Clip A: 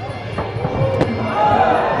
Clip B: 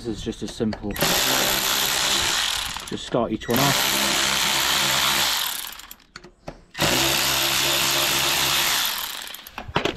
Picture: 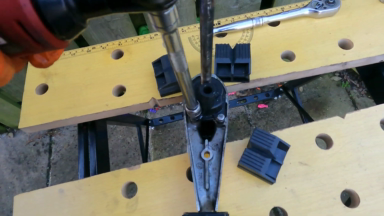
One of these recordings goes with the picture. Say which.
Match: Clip B